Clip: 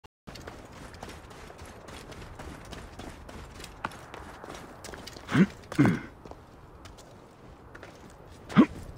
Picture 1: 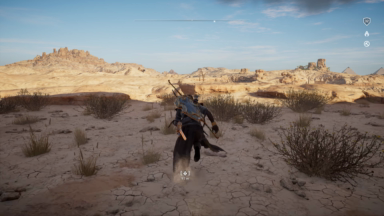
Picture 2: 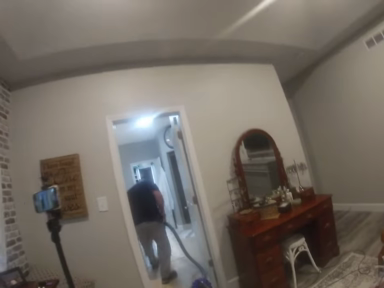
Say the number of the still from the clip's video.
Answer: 1